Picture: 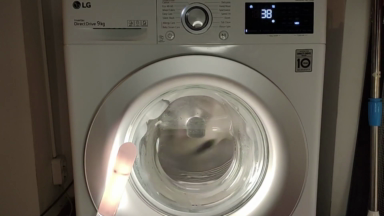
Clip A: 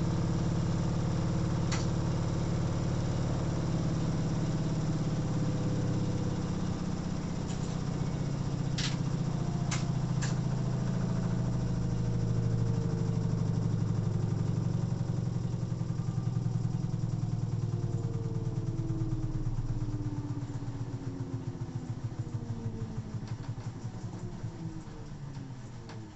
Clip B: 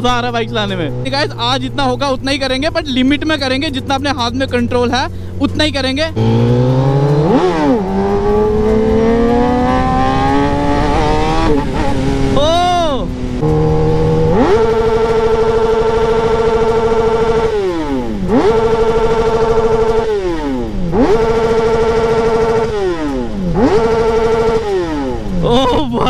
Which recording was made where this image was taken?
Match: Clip A